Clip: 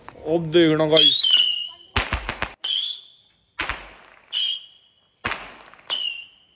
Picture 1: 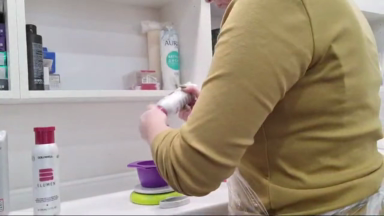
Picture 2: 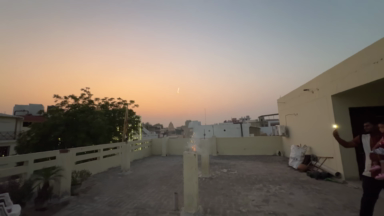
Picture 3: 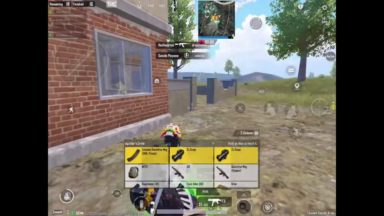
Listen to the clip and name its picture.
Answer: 2